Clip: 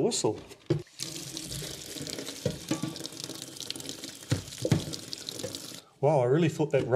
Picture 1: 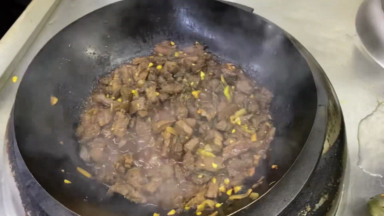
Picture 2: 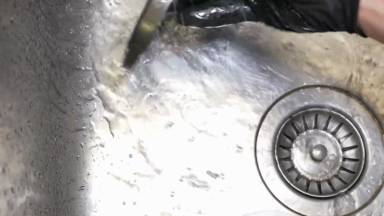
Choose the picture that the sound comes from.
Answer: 2